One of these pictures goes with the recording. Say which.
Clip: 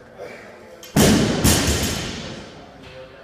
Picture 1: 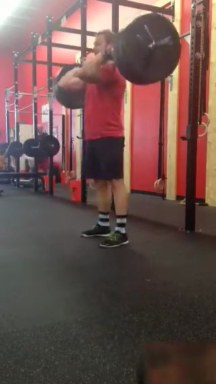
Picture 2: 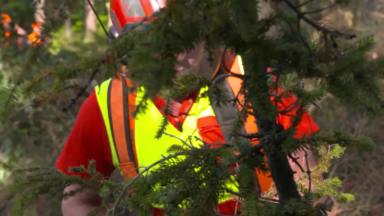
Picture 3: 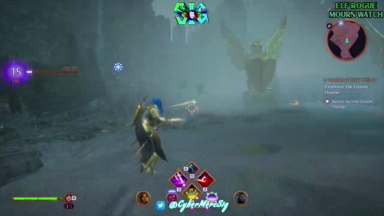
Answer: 1